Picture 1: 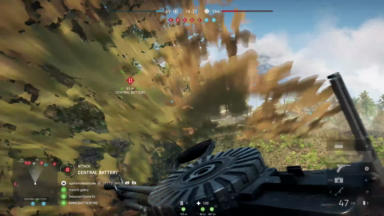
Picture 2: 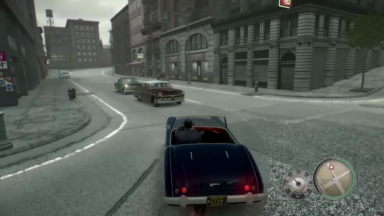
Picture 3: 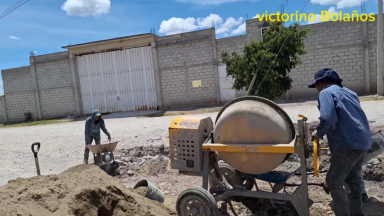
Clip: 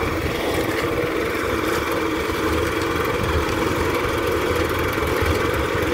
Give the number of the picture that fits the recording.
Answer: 3